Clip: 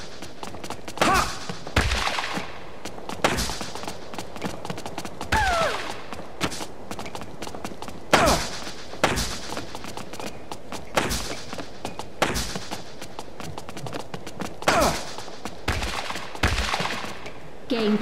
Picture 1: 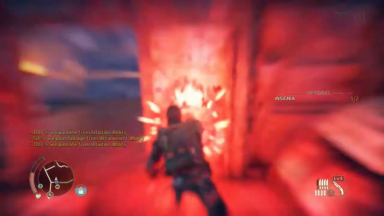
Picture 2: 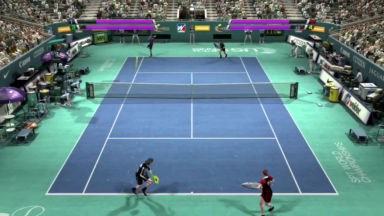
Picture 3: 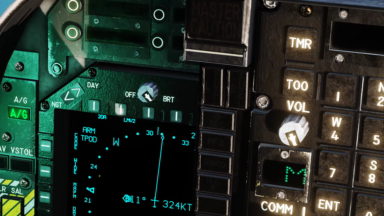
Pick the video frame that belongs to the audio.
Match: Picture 2